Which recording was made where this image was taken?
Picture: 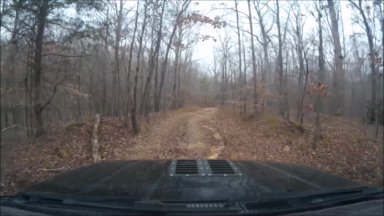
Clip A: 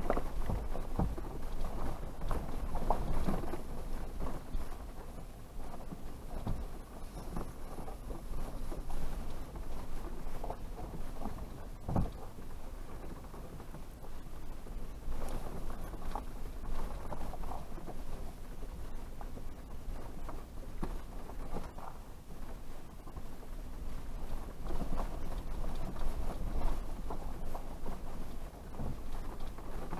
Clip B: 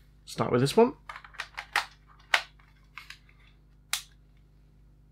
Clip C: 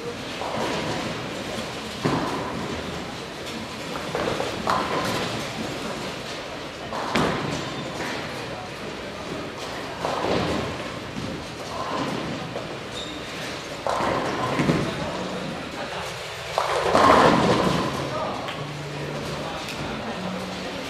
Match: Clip A